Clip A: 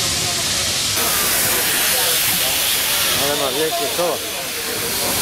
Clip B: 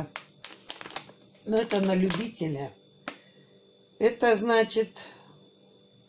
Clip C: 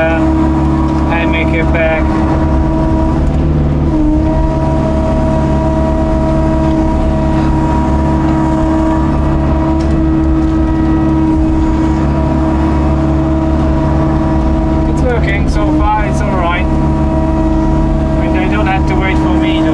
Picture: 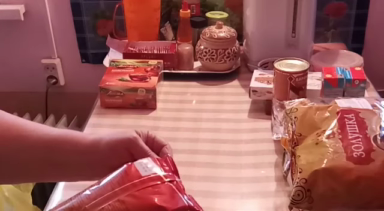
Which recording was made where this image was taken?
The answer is B